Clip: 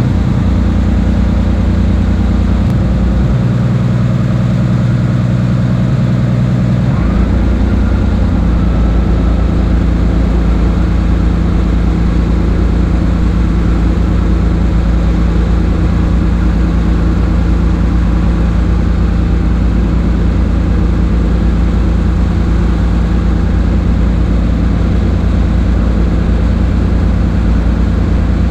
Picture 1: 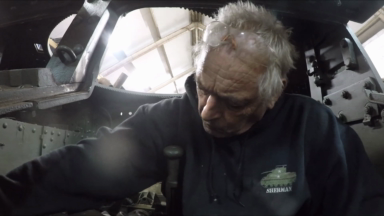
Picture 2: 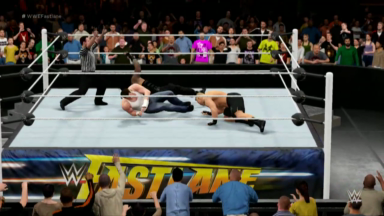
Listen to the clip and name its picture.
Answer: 1